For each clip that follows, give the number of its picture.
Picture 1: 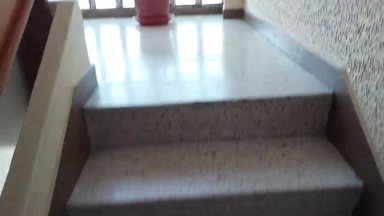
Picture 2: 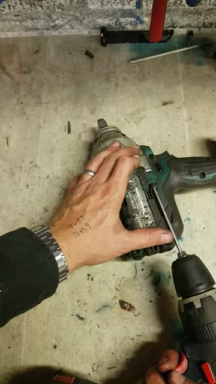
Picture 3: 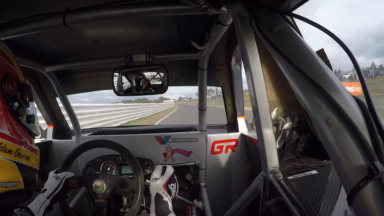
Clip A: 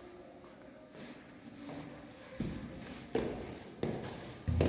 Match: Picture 1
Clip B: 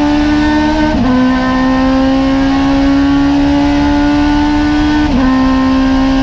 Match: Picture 3